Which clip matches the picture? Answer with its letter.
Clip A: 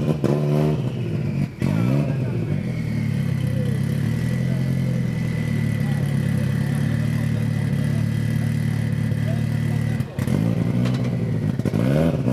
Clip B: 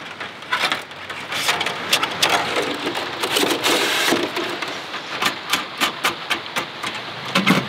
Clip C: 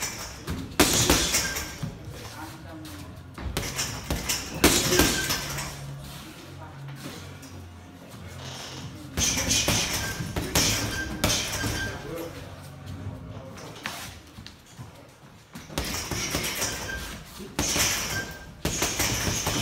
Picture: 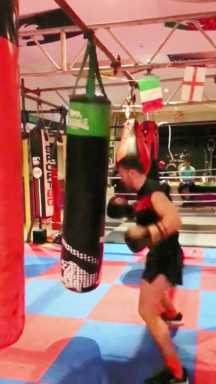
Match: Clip C